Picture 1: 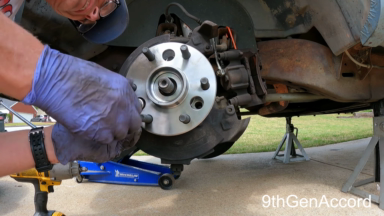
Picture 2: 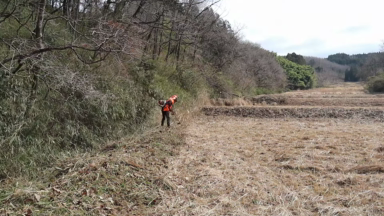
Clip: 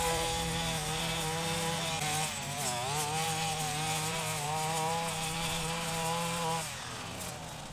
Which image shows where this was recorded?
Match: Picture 2